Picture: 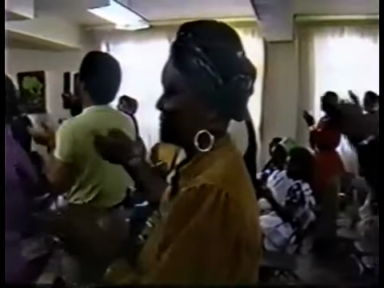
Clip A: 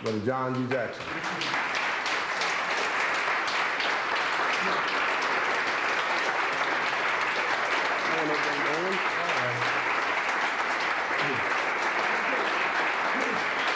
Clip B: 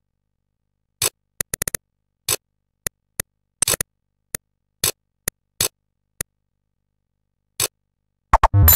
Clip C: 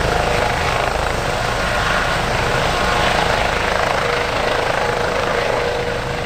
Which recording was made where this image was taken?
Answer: A